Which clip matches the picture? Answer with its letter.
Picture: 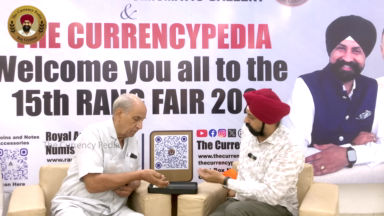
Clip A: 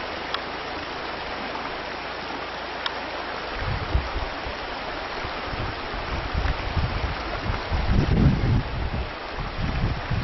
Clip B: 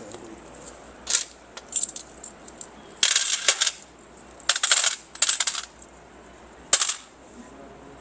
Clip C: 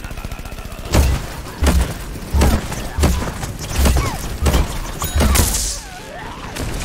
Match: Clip B